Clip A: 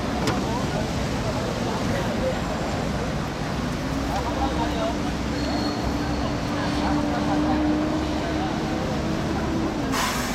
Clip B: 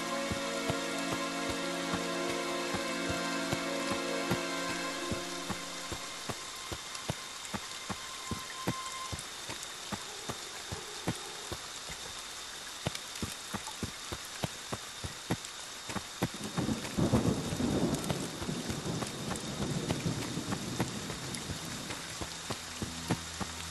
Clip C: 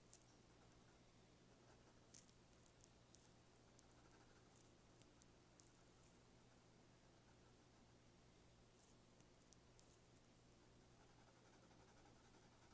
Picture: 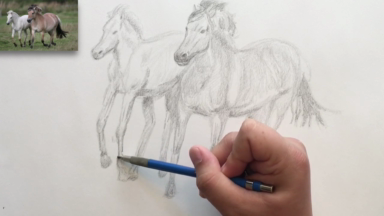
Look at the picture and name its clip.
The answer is C